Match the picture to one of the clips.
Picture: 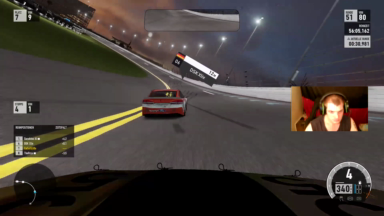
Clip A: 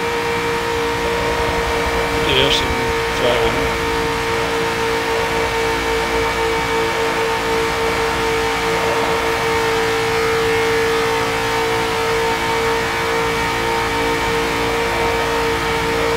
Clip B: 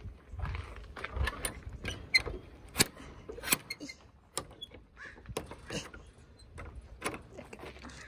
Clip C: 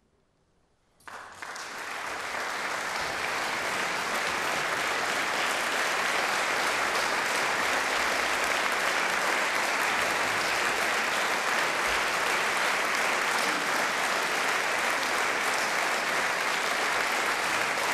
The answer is A